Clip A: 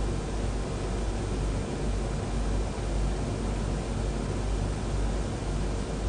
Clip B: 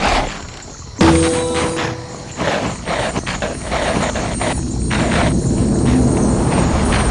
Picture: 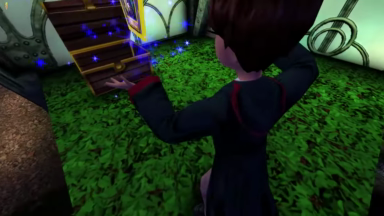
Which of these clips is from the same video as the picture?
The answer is B